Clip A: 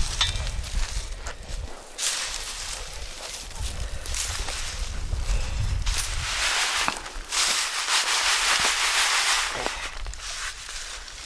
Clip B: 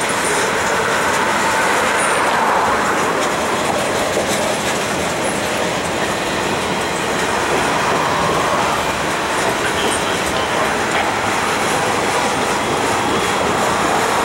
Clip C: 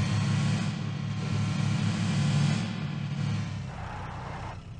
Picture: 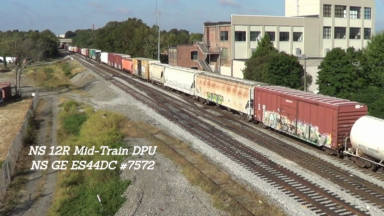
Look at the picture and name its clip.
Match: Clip B